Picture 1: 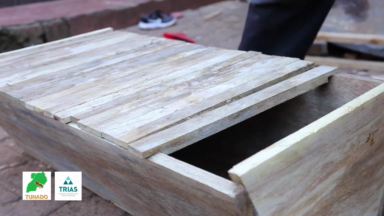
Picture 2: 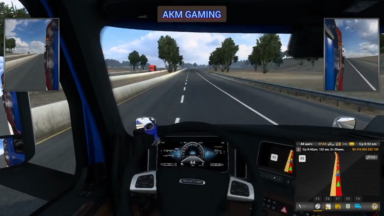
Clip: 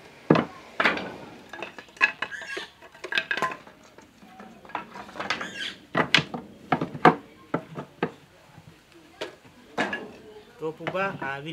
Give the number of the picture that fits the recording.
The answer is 1